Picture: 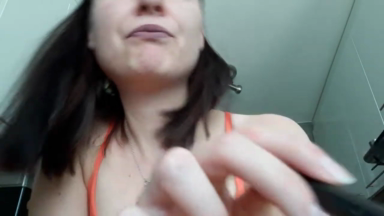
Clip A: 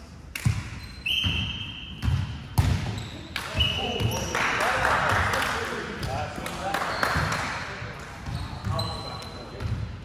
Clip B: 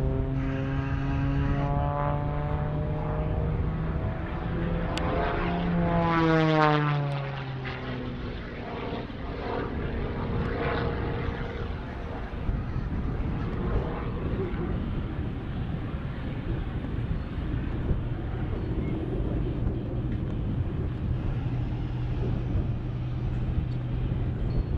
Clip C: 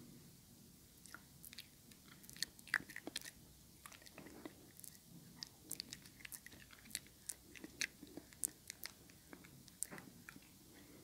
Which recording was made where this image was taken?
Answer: C